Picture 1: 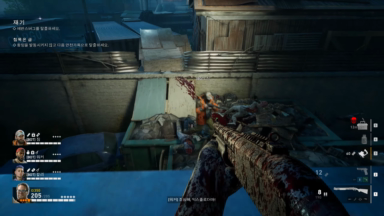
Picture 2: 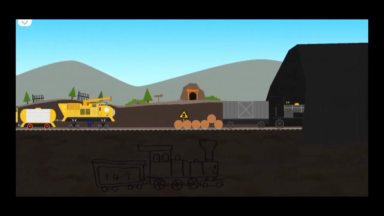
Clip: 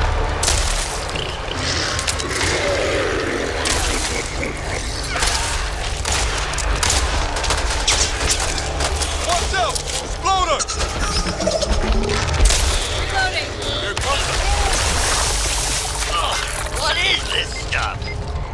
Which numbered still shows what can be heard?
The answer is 1